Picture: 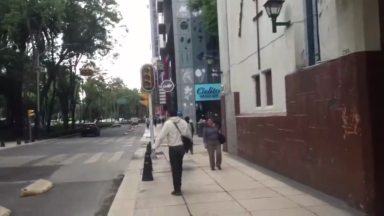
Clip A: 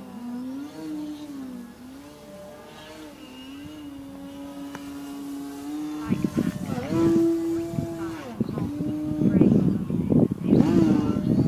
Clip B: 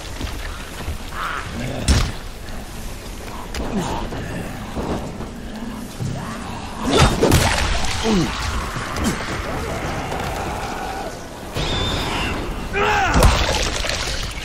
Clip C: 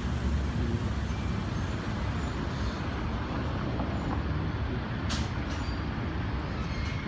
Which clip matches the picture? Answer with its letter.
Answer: C